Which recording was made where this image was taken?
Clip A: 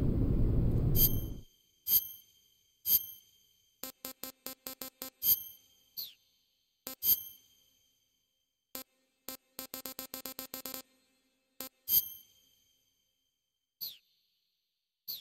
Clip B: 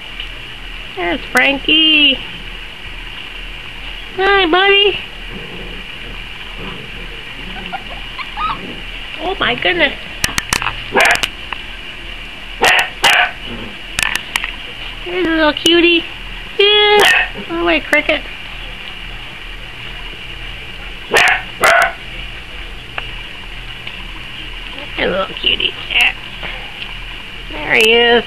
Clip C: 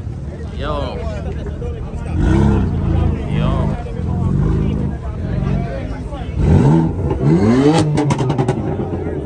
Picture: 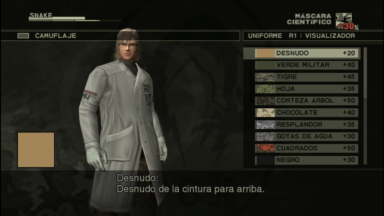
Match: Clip A